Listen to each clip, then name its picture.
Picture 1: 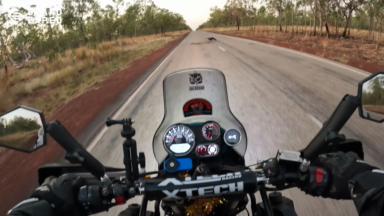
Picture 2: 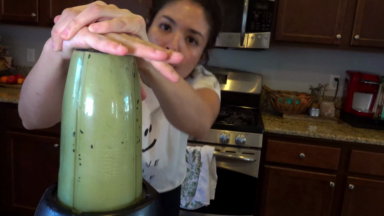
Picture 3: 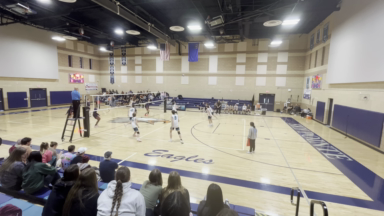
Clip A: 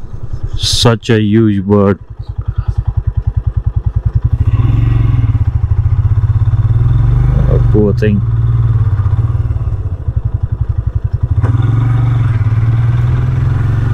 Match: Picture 1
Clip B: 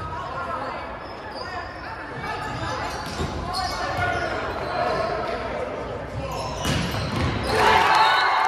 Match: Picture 3